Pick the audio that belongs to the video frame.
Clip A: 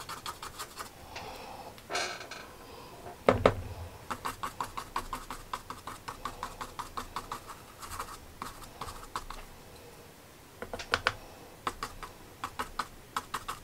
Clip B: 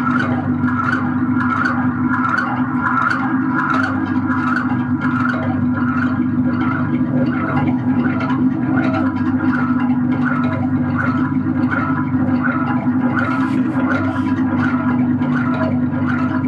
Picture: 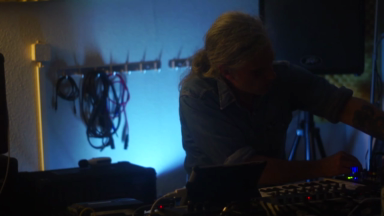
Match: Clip B